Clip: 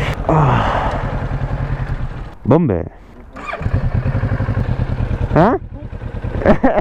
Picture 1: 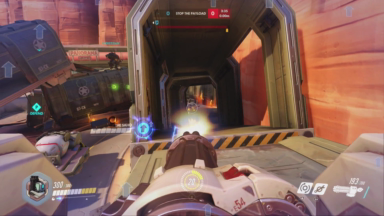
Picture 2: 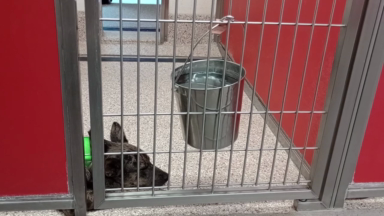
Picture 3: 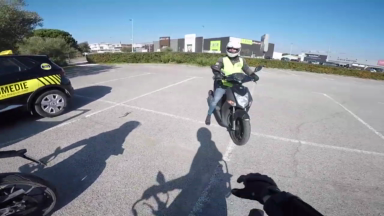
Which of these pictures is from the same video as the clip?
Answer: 3